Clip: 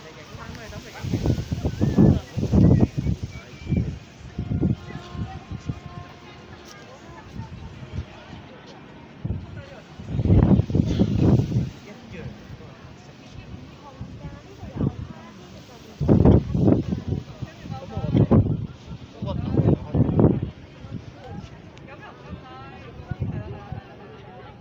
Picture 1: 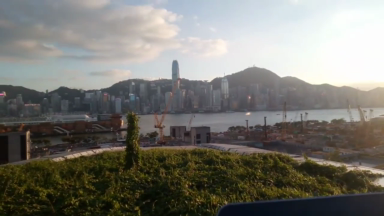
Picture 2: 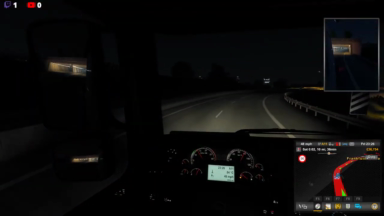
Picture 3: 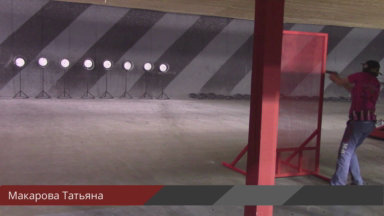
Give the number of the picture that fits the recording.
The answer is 1